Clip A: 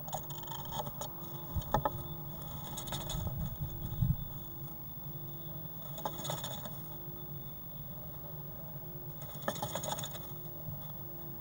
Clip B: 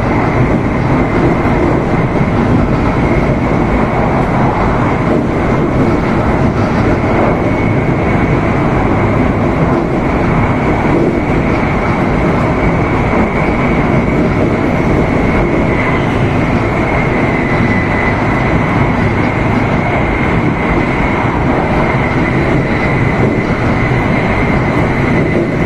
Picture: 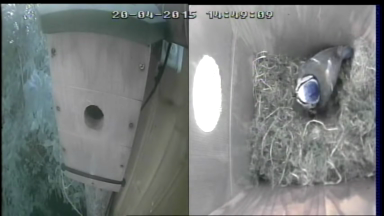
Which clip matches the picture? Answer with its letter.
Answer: A